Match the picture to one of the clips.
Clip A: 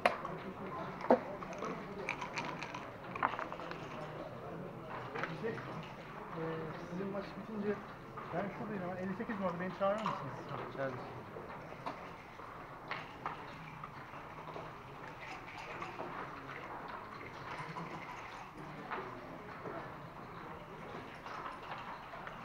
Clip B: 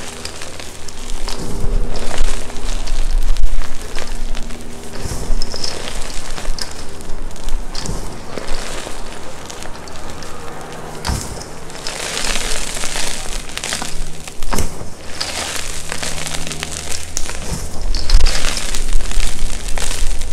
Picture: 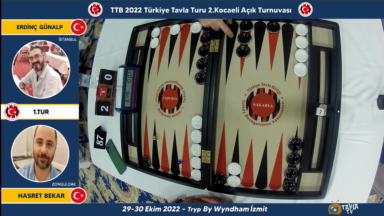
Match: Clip A